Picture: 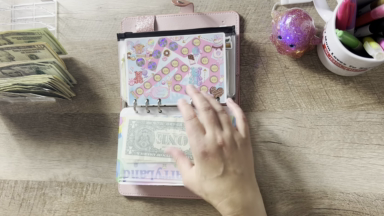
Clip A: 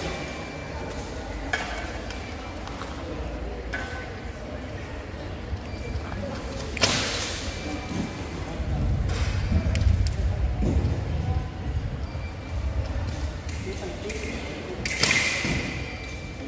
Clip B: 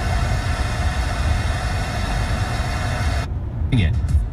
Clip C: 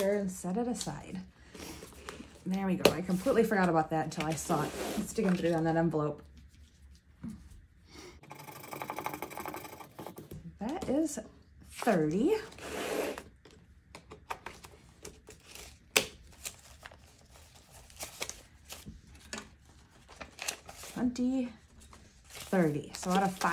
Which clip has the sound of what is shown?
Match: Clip C